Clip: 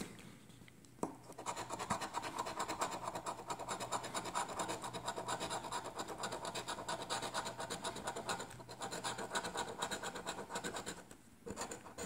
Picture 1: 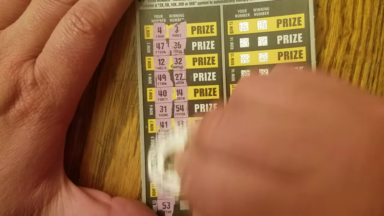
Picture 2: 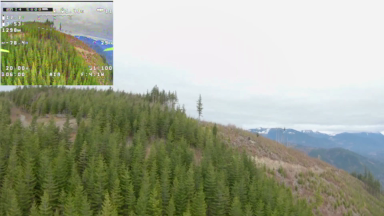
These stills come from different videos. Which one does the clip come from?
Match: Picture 1